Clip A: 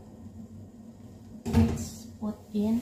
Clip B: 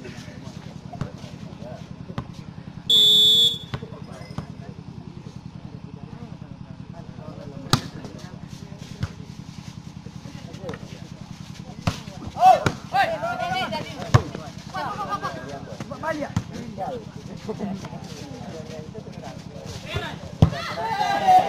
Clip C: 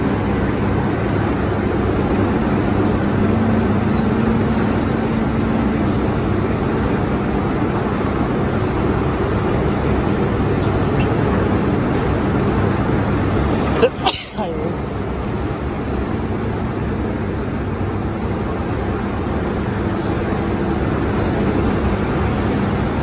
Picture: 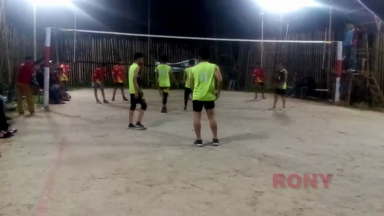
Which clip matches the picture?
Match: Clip B